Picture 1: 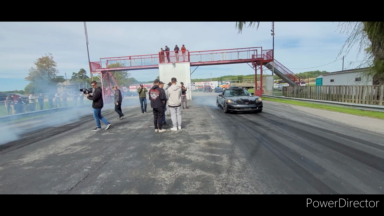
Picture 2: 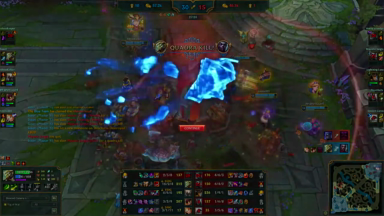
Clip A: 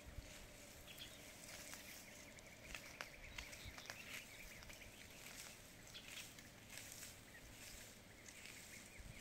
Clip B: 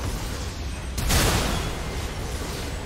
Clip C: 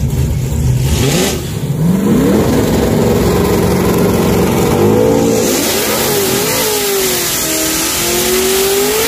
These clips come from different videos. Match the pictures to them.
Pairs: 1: C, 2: B